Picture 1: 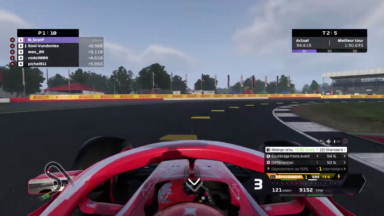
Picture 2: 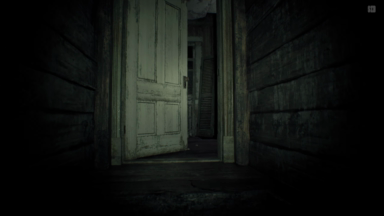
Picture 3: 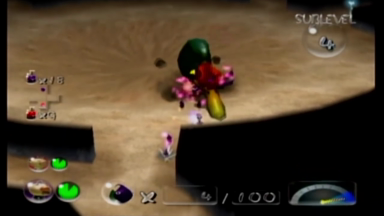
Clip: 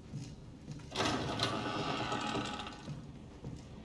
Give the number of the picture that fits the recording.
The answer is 2